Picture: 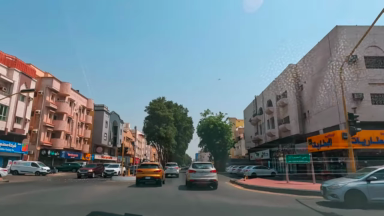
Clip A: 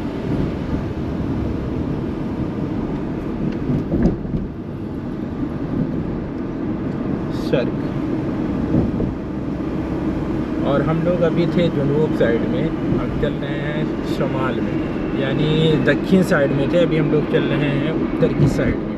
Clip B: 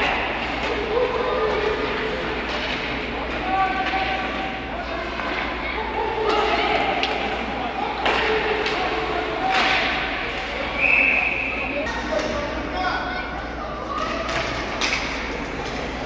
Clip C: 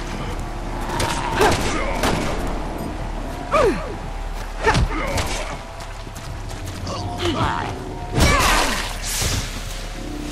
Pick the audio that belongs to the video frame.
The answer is A